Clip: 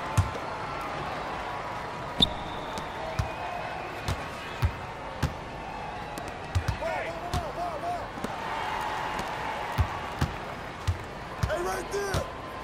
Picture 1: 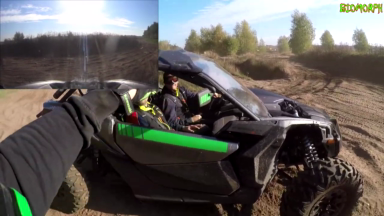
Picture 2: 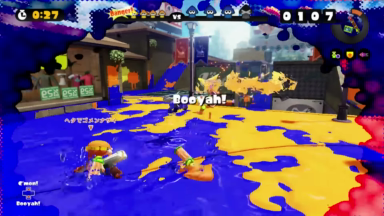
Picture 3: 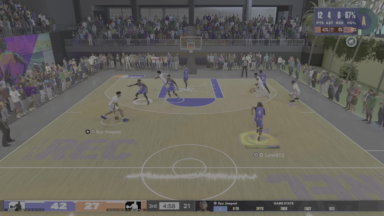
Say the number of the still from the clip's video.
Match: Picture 3